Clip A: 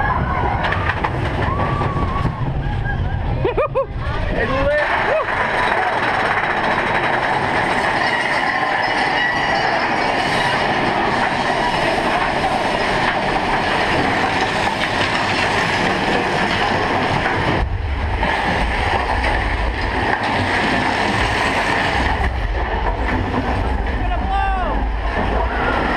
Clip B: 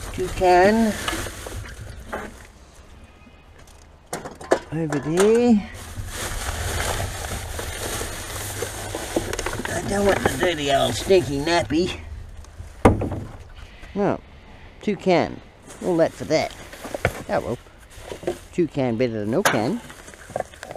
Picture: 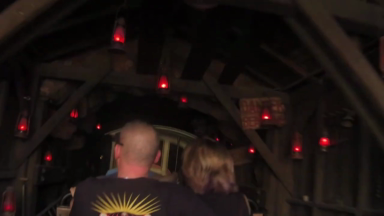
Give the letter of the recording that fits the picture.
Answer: A